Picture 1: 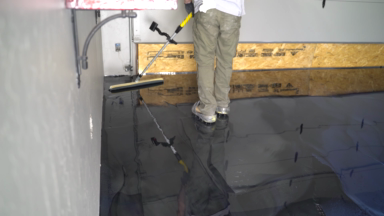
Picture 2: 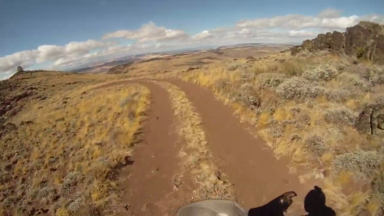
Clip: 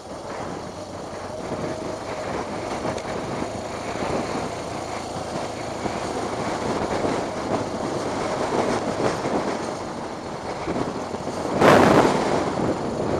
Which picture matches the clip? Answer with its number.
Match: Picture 2